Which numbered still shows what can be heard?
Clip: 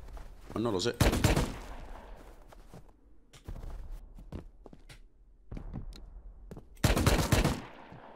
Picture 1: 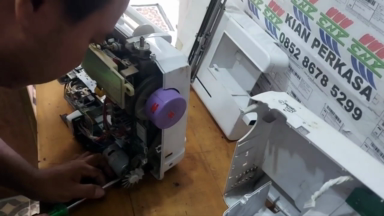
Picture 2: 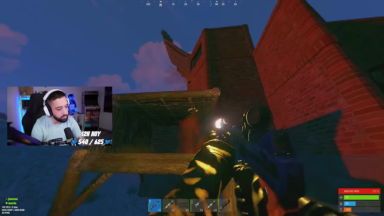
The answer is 2